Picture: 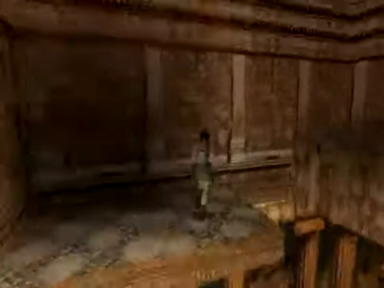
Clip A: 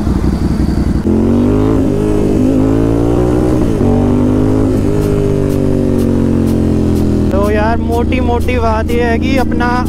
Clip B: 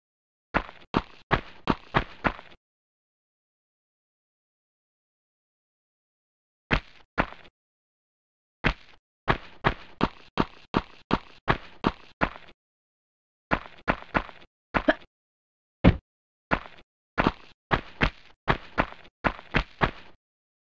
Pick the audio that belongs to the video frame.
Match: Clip B